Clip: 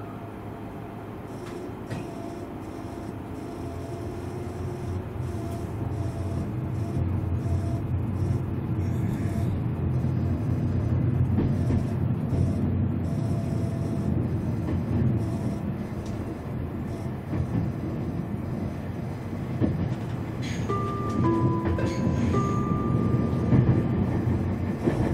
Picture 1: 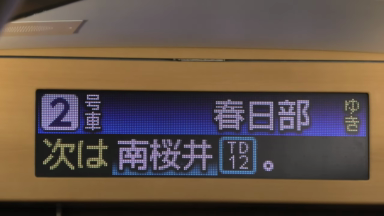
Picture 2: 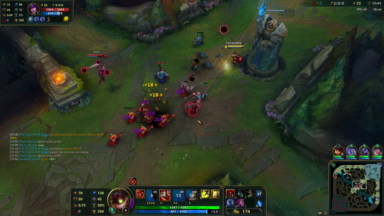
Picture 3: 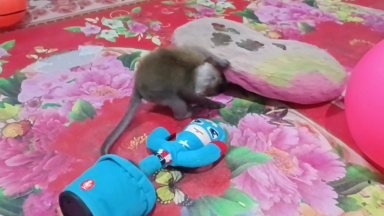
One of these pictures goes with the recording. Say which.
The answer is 1